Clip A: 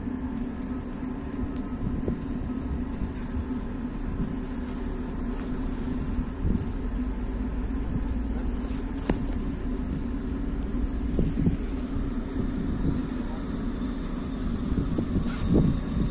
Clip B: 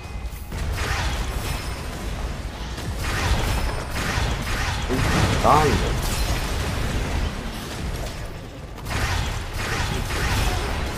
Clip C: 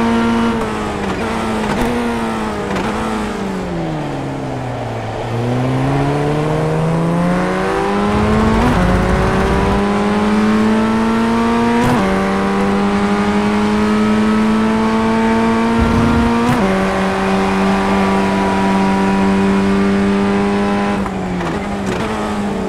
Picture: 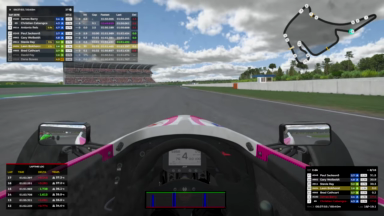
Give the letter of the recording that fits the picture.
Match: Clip C